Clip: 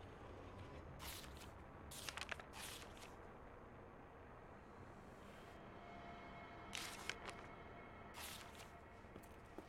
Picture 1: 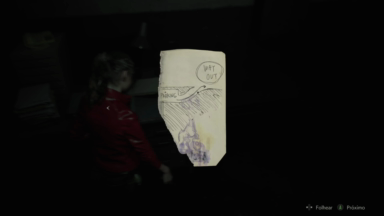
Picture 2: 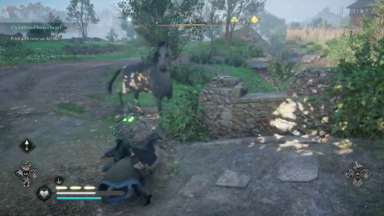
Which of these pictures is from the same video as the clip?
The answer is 1